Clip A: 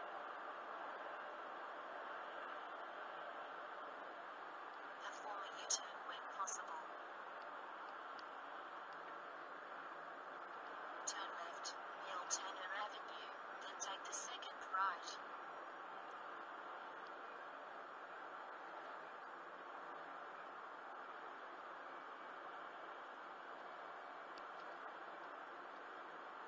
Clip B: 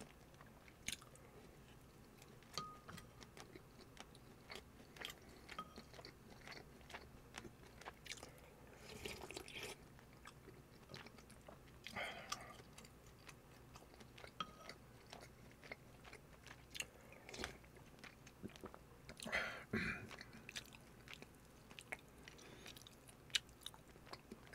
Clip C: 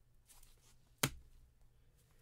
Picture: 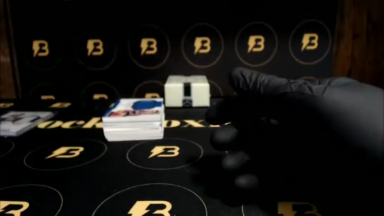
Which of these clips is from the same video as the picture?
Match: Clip C